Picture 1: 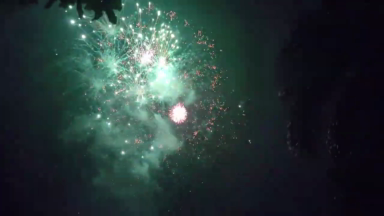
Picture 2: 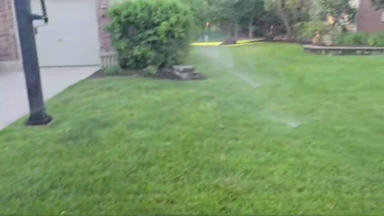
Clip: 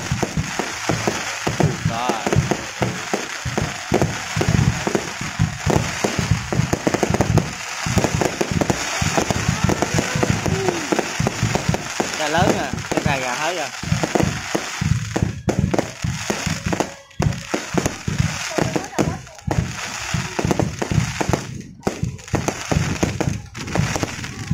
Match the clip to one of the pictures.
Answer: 1